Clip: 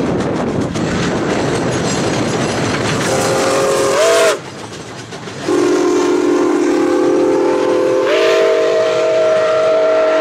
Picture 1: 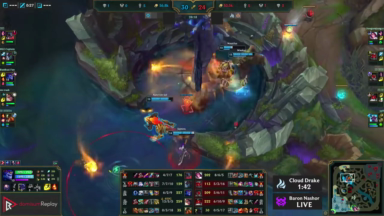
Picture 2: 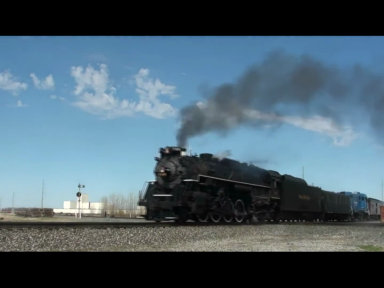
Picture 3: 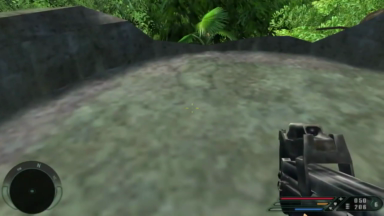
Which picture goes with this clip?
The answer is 2